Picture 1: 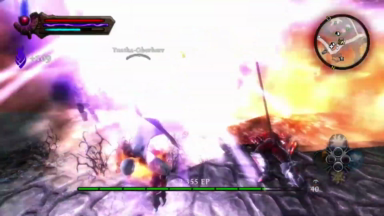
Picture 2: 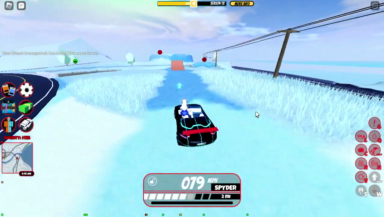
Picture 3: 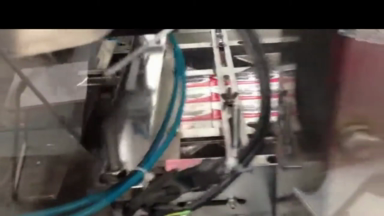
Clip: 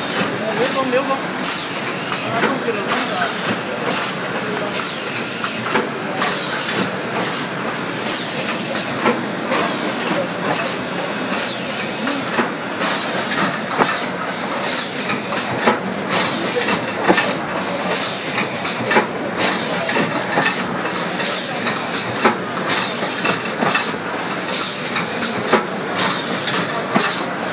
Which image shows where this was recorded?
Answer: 3